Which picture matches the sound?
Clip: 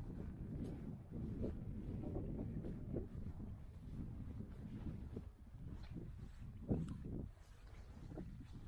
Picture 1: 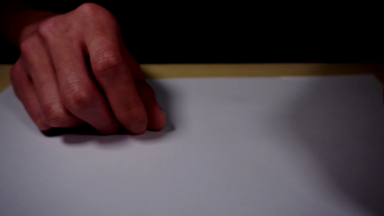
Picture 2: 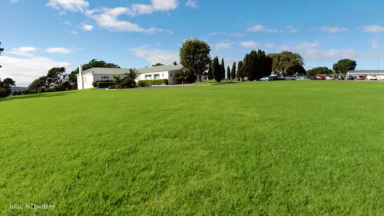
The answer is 2